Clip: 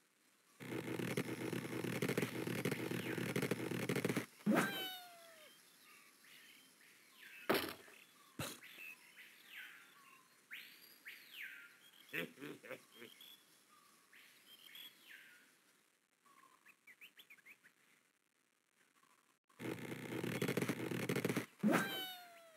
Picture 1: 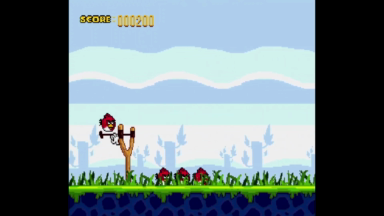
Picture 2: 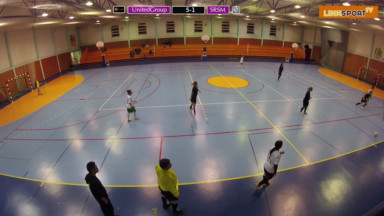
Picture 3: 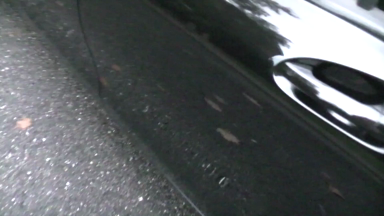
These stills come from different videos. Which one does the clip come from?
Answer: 1